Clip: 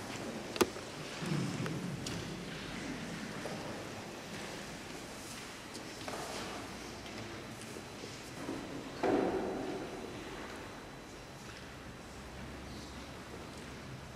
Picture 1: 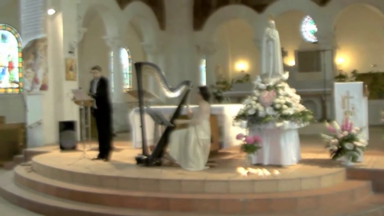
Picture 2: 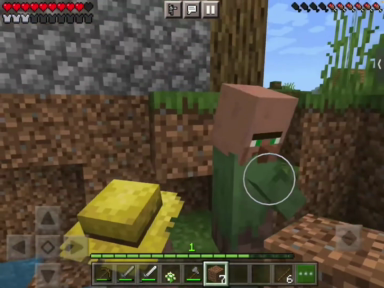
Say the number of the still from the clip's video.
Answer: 1